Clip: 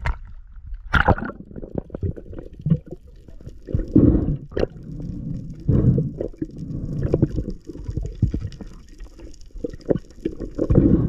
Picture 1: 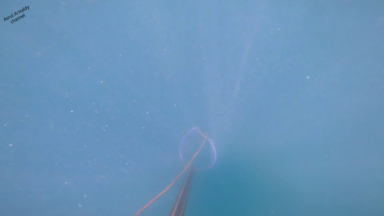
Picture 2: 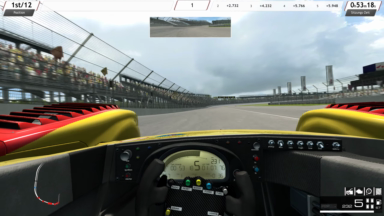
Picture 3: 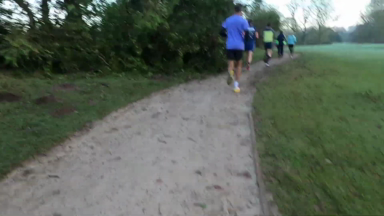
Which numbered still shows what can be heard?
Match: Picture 1